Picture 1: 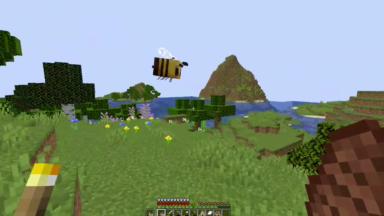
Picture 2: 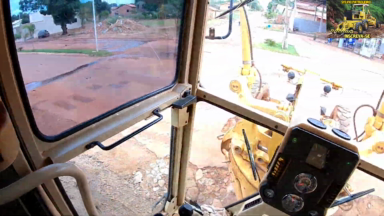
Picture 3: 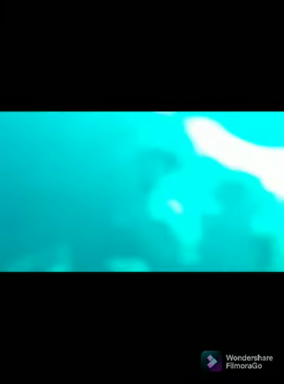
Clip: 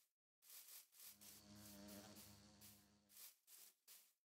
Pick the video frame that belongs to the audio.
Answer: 1